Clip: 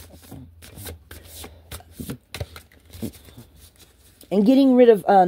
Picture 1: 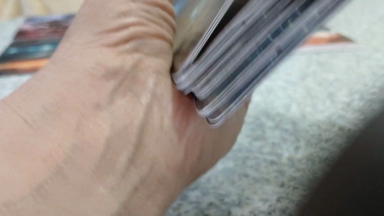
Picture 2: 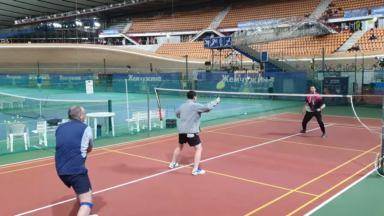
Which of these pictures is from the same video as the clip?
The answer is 1